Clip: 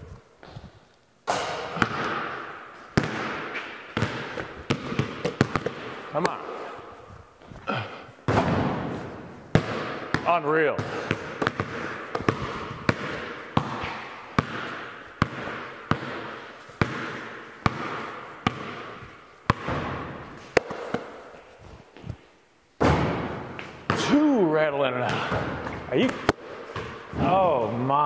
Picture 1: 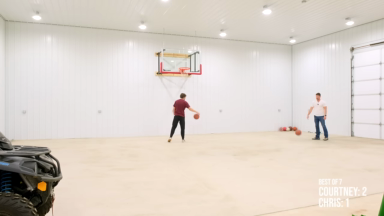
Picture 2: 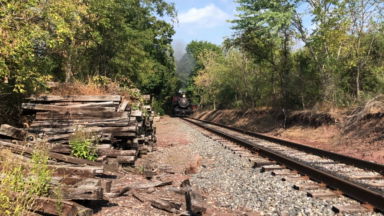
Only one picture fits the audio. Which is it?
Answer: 1